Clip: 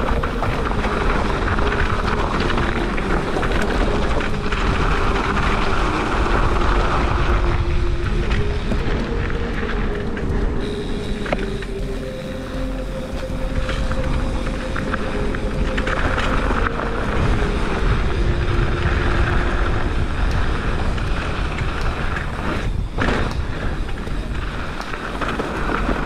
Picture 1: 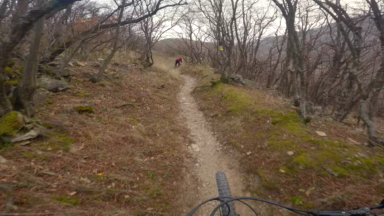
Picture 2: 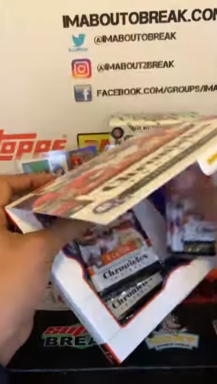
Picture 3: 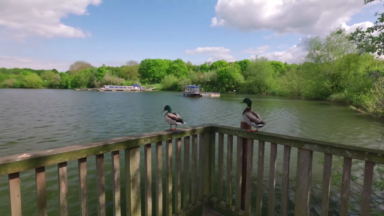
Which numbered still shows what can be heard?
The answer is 1